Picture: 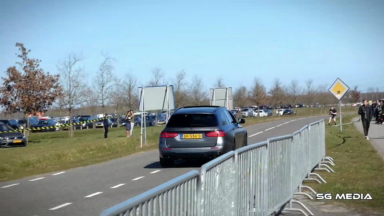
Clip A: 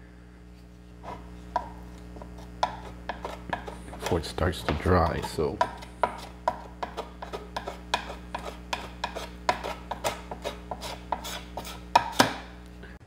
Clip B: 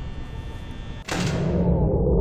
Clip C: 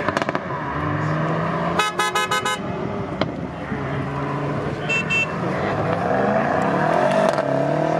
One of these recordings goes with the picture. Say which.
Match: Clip C